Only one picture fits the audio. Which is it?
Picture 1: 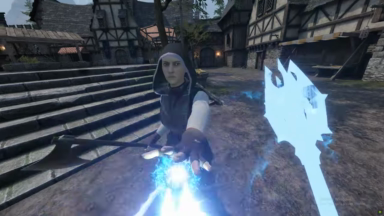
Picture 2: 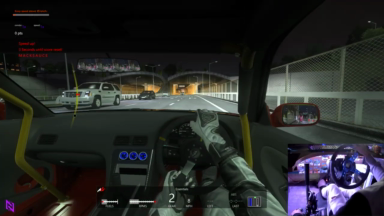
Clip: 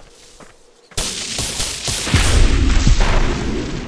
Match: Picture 1